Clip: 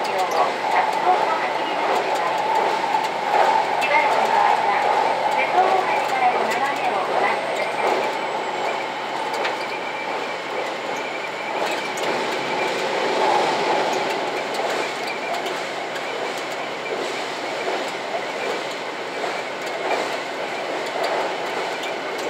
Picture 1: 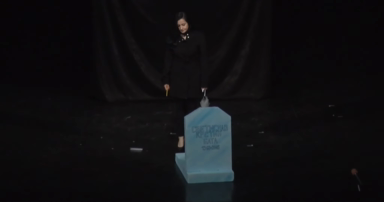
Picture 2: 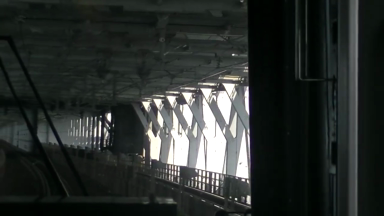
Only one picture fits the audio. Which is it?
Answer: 2